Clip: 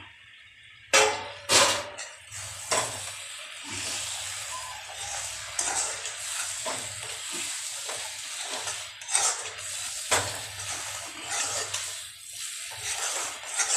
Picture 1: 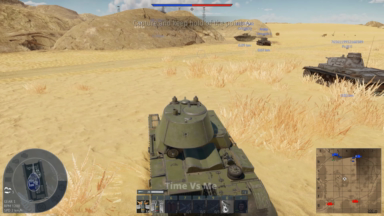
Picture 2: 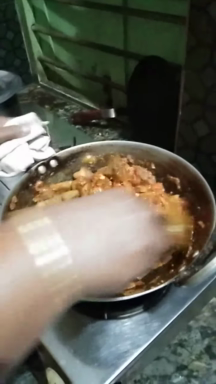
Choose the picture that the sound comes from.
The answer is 2